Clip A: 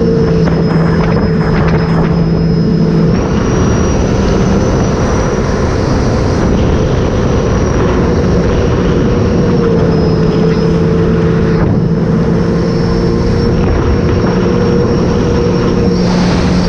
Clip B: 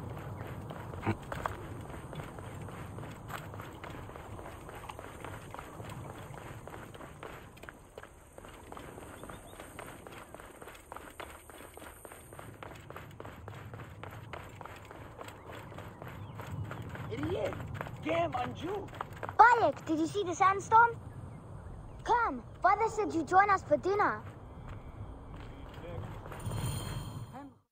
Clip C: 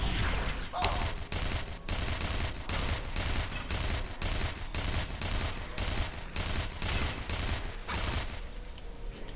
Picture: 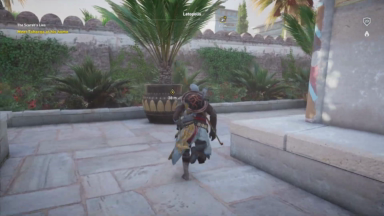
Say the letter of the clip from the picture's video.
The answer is B